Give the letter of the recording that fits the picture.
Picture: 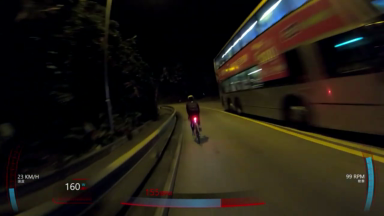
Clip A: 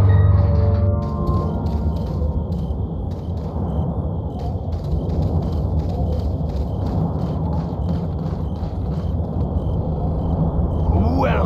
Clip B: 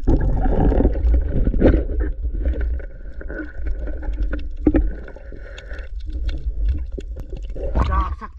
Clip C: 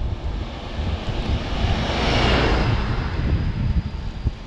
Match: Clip C